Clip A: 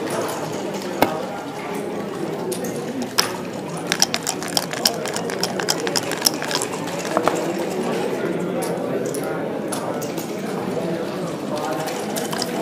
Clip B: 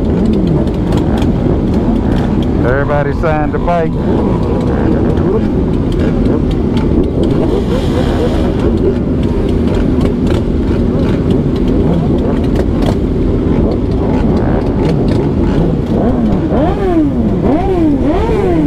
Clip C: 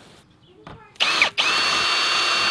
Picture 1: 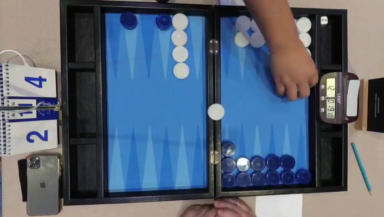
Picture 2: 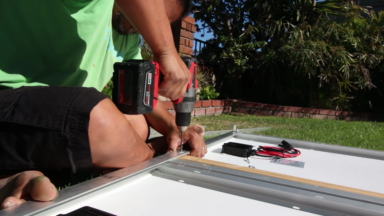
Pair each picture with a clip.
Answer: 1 A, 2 C